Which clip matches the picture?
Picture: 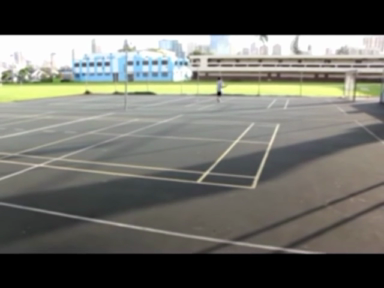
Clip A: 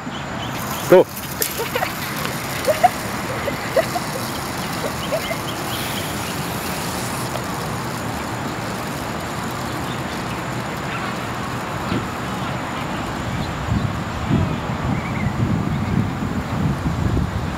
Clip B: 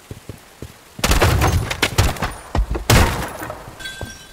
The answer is A